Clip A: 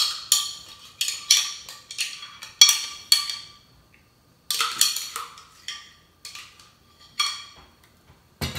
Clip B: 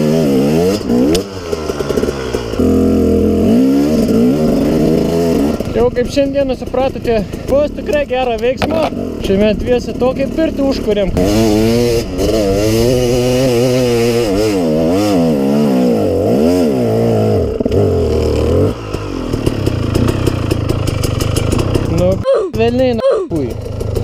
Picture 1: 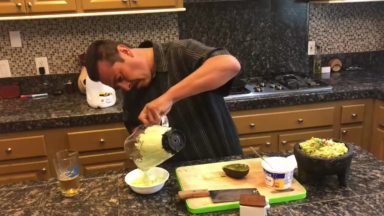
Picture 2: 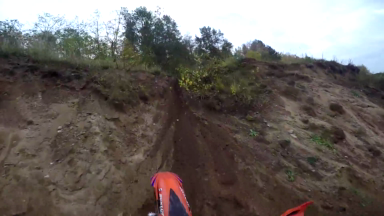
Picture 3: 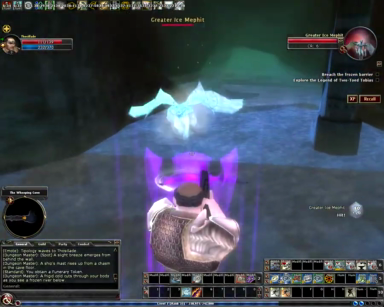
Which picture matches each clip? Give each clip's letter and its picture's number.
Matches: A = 1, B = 2